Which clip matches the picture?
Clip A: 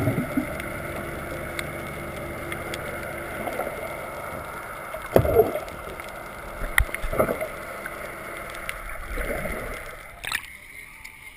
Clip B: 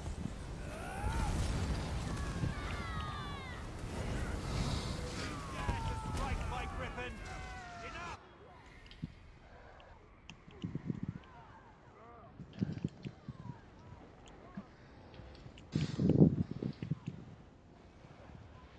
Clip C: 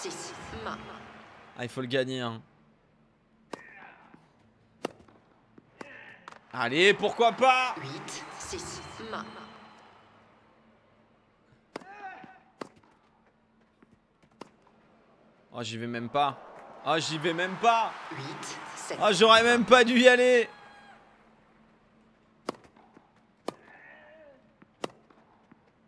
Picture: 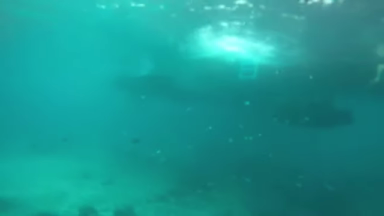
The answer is A